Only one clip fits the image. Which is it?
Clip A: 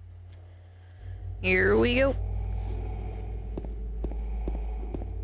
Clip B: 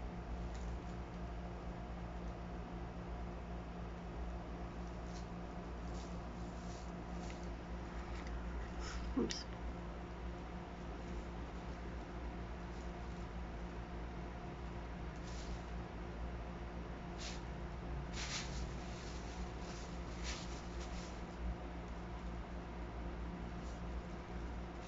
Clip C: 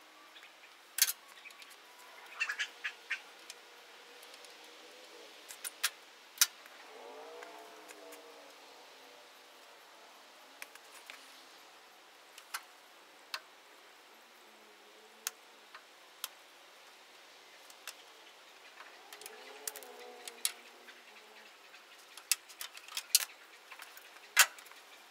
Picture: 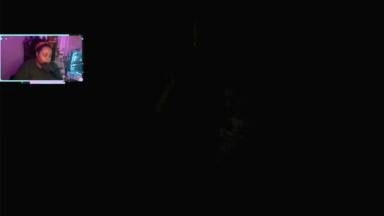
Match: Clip A